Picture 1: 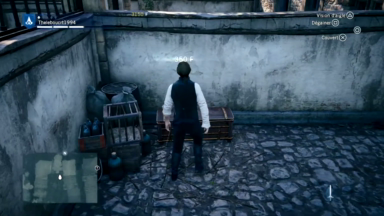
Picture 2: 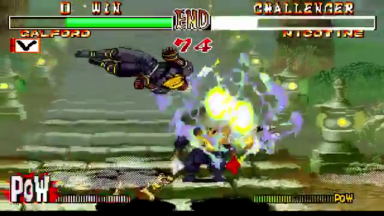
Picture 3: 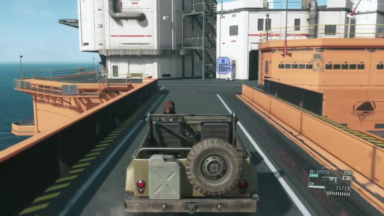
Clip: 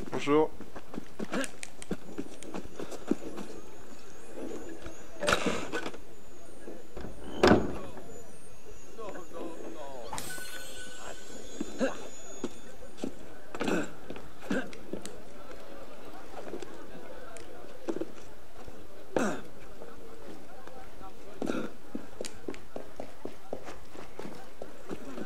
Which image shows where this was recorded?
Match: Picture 1